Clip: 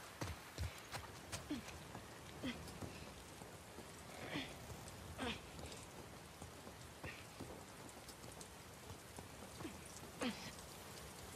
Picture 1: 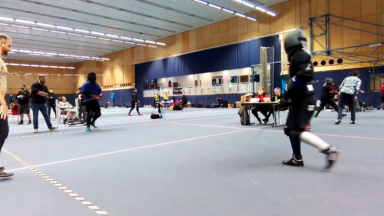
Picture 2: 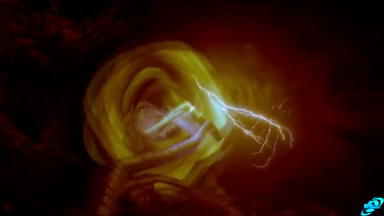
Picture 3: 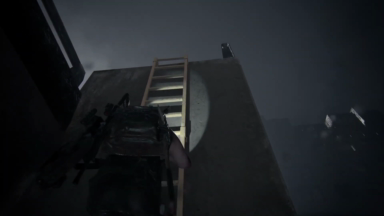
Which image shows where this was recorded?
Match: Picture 3